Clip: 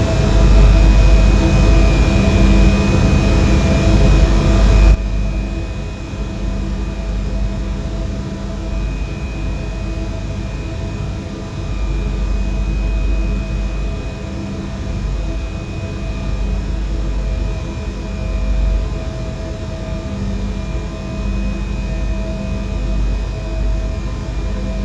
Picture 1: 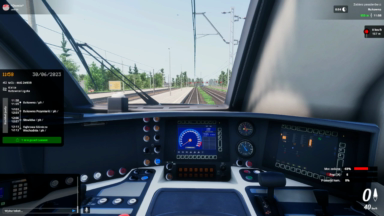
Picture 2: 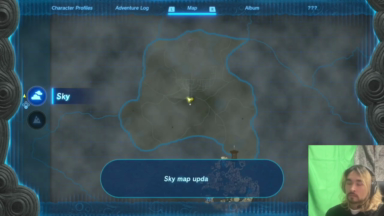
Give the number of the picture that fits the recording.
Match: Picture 1